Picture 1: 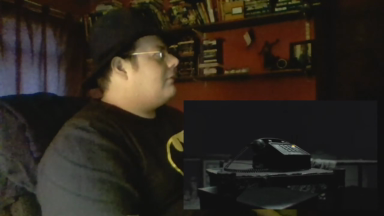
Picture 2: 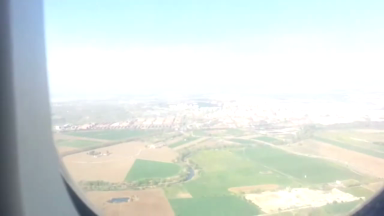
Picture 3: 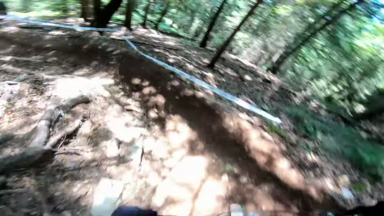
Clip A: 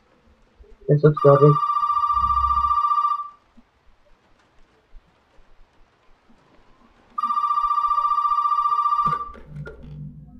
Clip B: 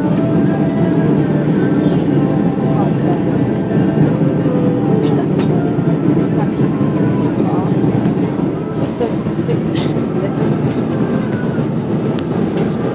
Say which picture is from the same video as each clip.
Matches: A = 1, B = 2